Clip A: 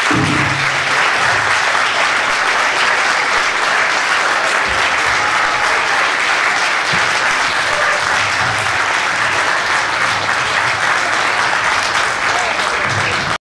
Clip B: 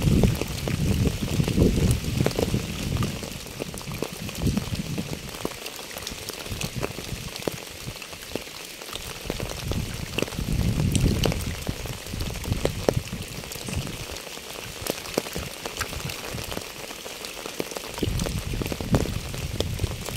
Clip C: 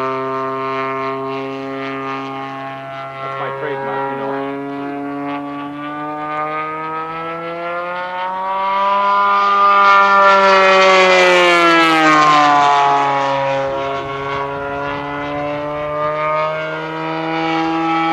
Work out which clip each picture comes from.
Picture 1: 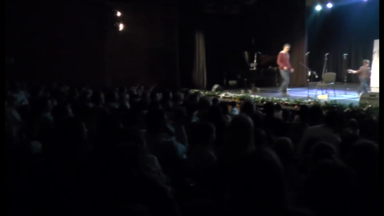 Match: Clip A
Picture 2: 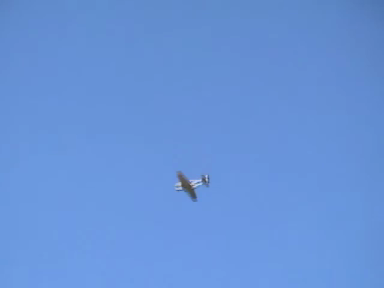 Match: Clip C